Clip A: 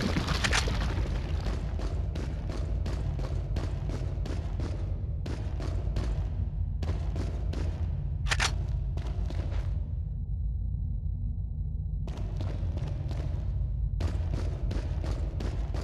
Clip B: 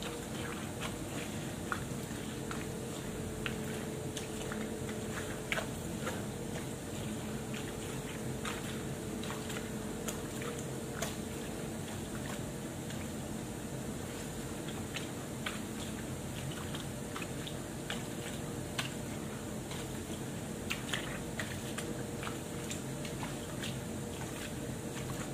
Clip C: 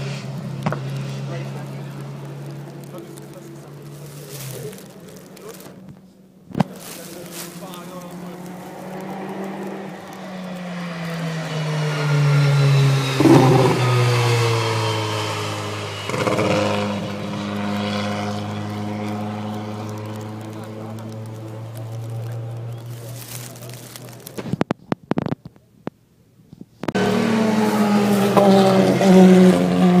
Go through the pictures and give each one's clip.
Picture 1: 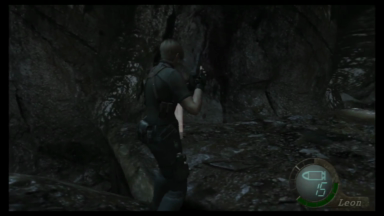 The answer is A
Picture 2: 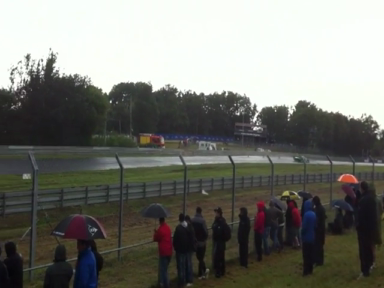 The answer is C